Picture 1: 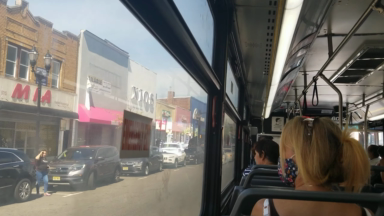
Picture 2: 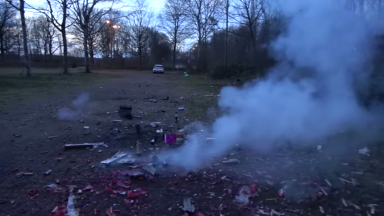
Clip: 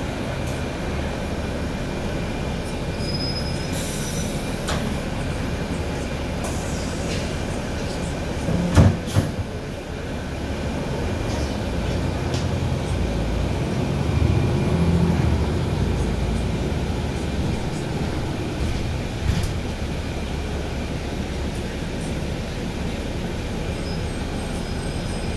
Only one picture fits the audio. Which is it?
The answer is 1